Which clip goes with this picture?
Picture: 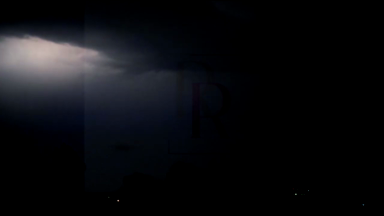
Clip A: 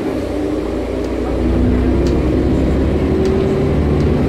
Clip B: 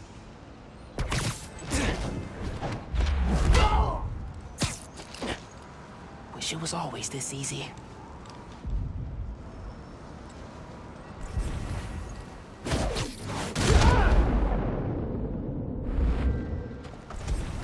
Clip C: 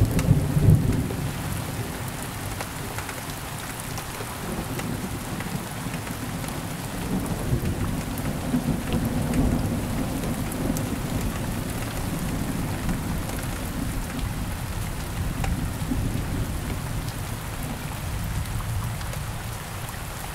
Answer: C